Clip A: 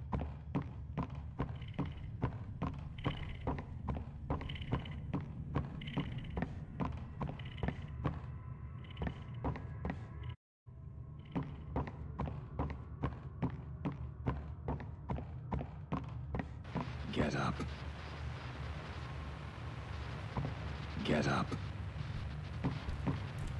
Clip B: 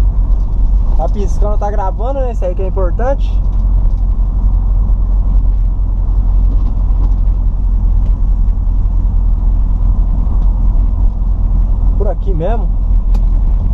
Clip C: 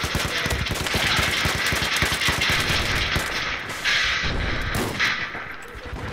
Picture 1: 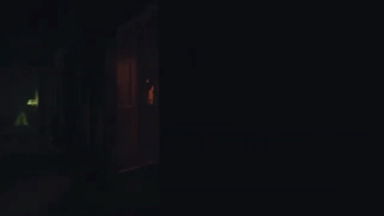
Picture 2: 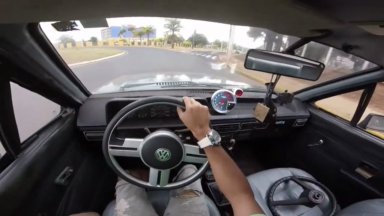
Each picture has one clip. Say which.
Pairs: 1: A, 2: B